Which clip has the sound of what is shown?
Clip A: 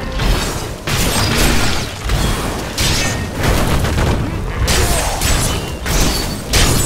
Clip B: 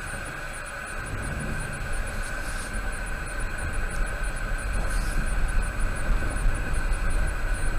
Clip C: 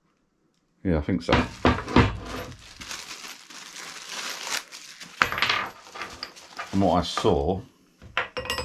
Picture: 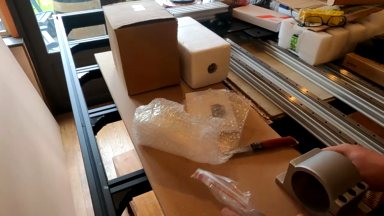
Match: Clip C